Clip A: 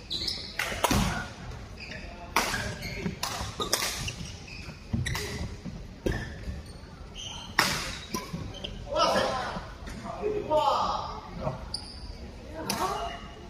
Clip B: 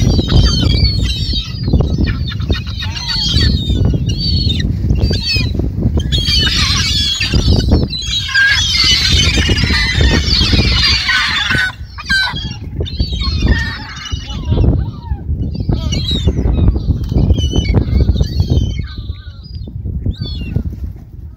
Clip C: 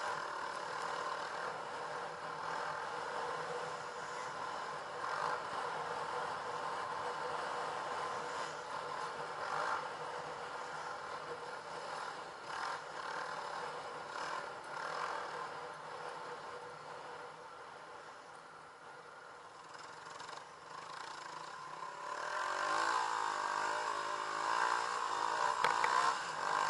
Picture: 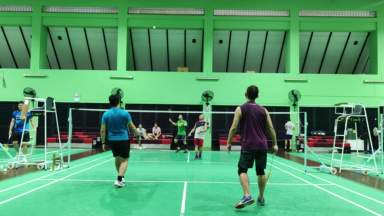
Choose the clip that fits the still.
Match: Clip A